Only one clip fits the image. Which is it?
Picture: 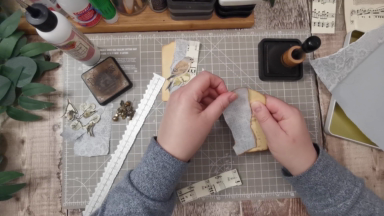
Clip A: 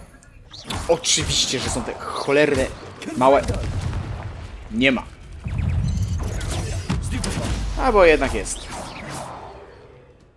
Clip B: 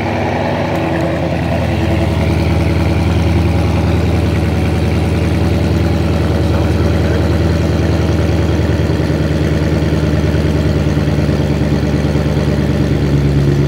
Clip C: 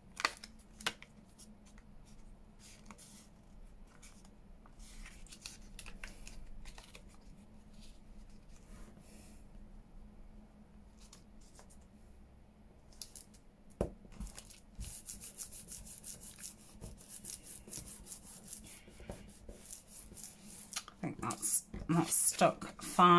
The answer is C